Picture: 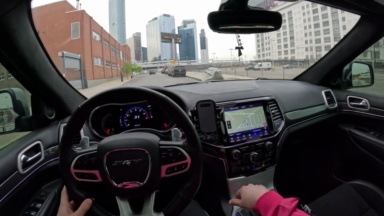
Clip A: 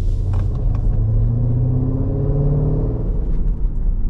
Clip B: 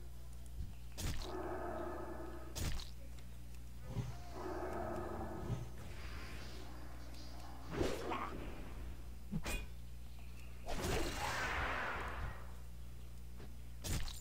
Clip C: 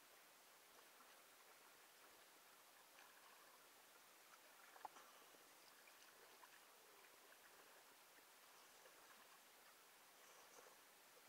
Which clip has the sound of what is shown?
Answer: A